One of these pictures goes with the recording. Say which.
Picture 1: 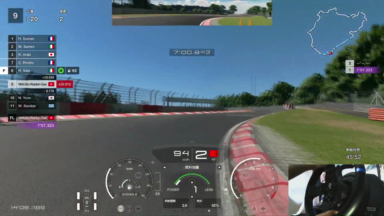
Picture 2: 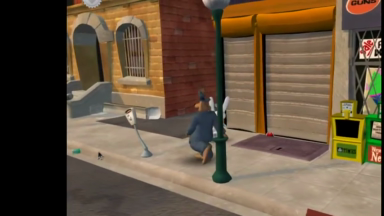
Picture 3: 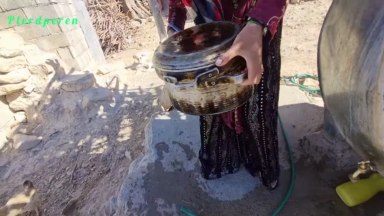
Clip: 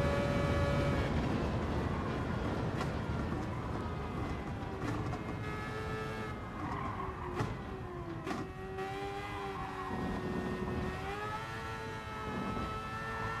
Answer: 1